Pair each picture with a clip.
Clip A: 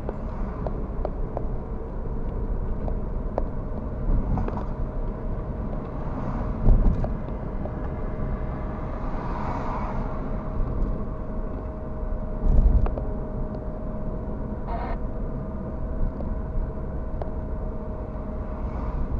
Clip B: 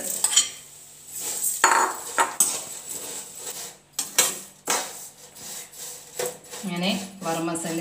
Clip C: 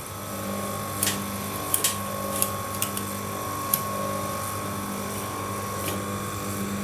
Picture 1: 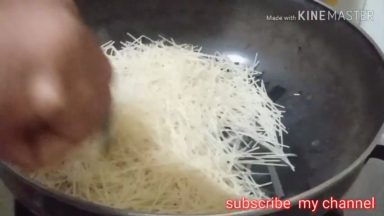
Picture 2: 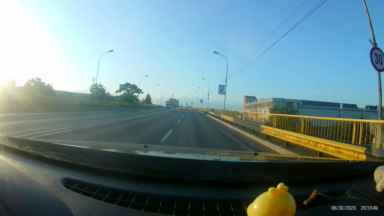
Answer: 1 B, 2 A